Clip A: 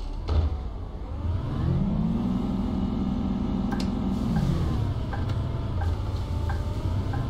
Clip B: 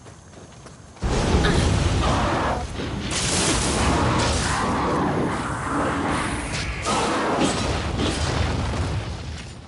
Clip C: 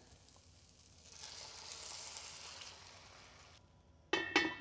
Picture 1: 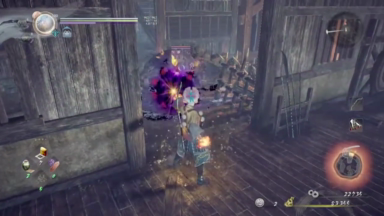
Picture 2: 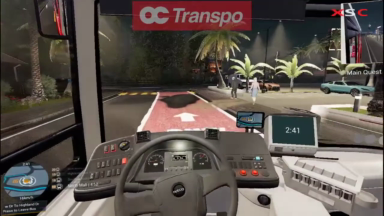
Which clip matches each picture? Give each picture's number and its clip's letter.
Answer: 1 B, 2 A